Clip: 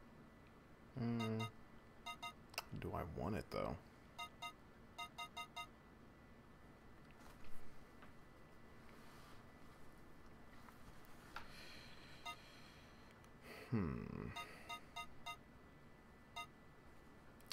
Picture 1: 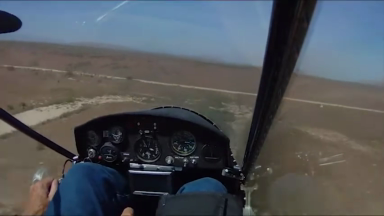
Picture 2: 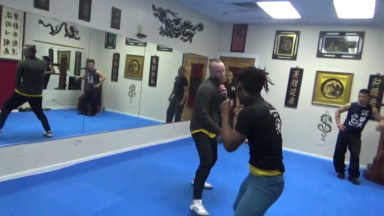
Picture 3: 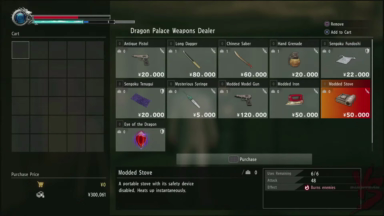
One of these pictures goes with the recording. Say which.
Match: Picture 3